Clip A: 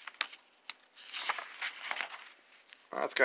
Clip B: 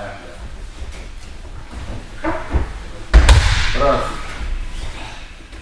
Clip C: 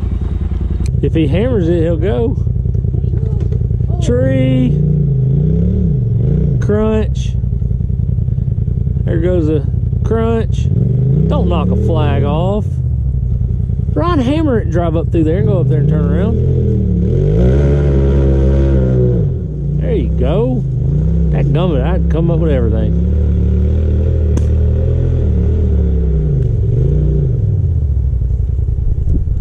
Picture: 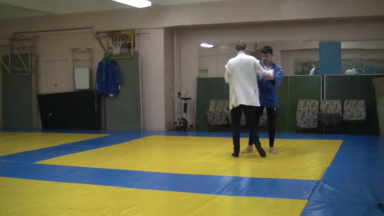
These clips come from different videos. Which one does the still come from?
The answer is B